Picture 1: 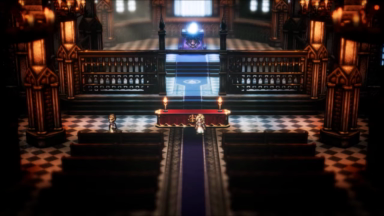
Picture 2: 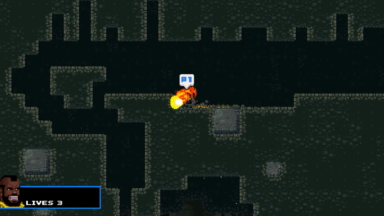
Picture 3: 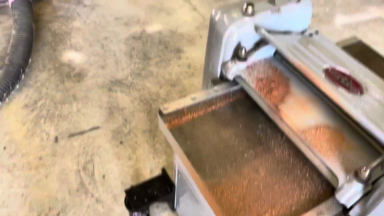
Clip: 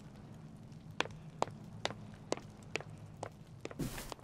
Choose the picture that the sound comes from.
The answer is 1